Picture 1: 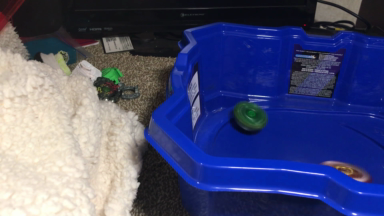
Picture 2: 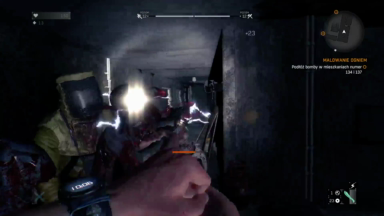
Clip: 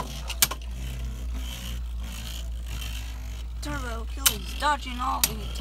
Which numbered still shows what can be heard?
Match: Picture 1